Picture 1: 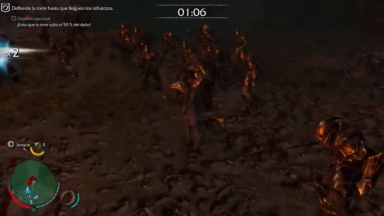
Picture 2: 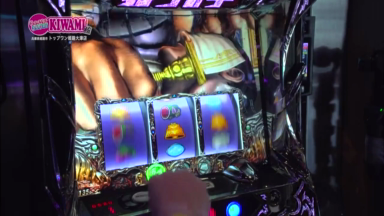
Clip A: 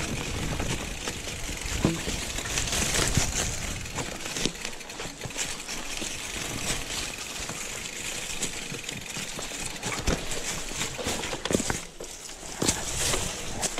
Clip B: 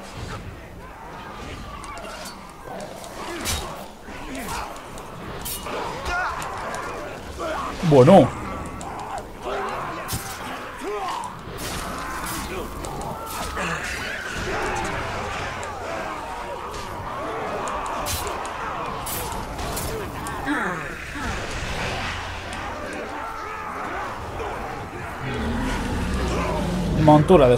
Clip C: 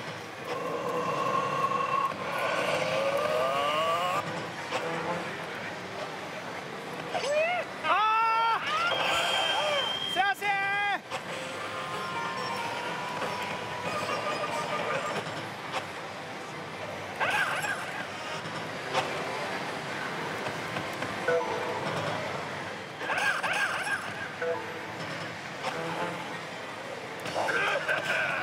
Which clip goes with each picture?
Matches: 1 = B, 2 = C